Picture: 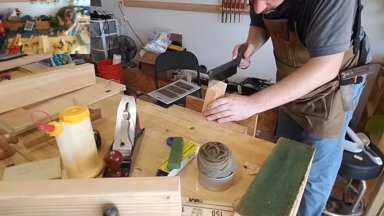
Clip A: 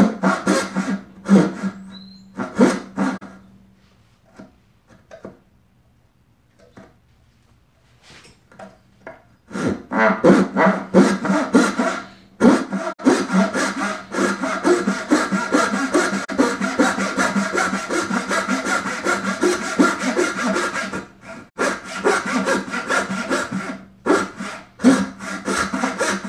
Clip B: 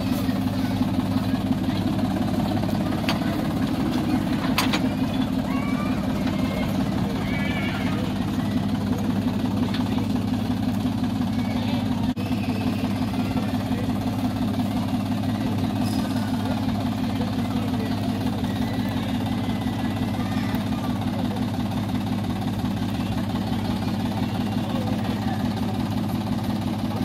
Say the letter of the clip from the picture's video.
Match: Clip A